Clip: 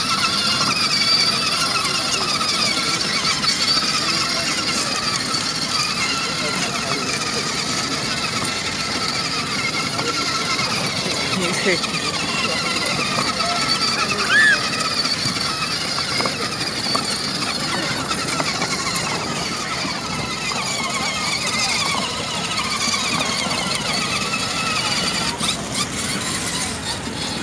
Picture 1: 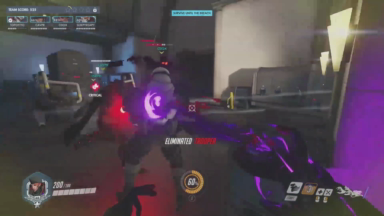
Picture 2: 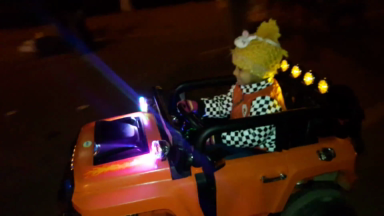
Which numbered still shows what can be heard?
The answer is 2